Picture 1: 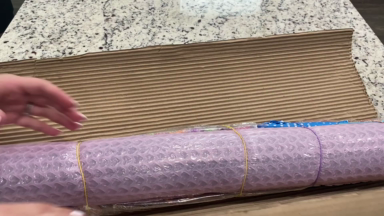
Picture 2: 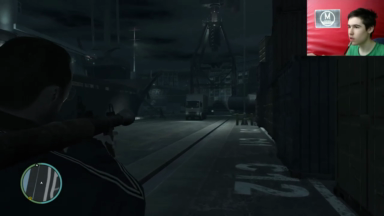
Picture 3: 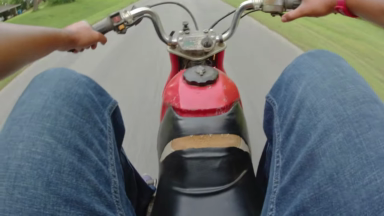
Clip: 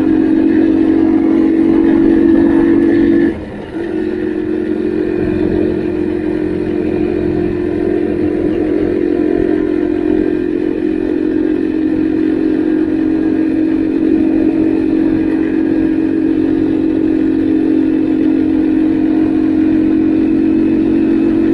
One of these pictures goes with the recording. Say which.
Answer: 3